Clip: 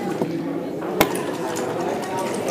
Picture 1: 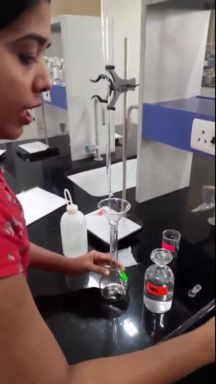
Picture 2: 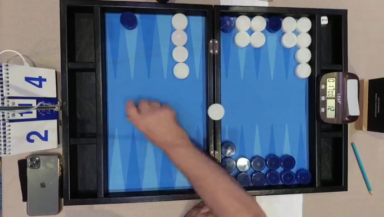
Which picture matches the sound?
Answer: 2